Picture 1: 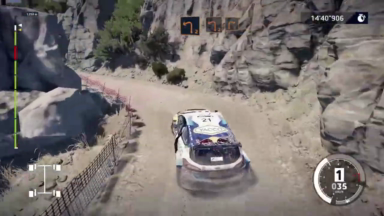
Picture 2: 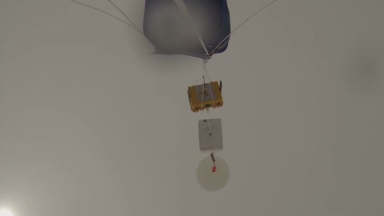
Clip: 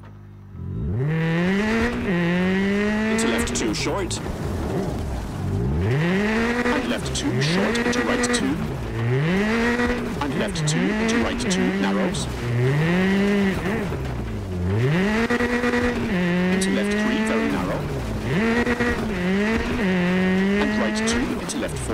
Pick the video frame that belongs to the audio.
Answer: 1